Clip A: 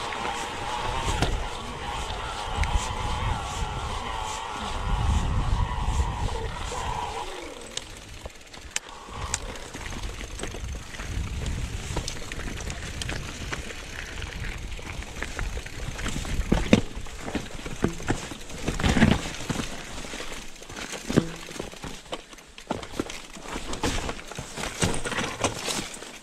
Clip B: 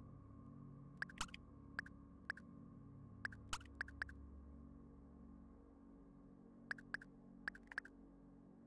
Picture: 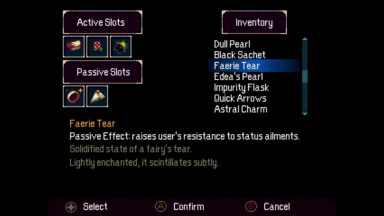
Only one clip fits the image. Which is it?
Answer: B